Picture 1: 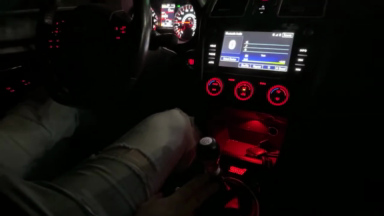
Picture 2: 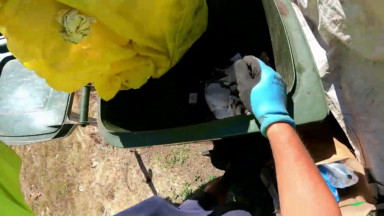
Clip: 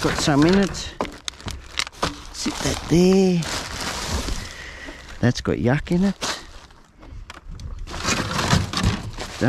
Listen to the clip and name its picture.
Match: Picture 2